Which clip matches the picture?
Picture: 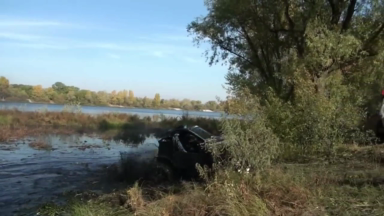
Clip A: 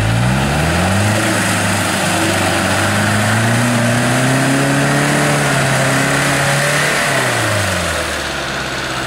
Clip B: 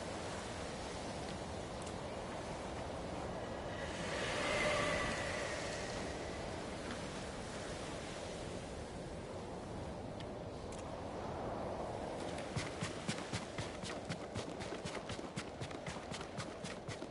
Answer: A